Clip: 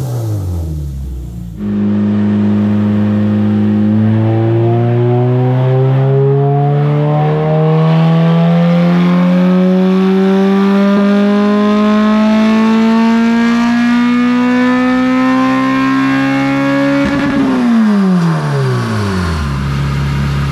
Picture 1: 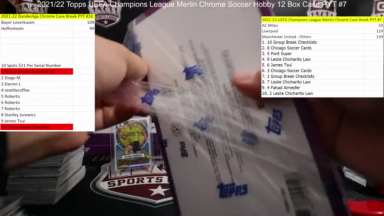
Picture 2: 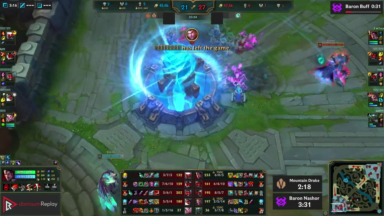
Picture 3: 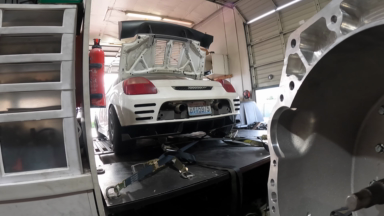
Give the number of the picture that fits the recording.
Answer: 3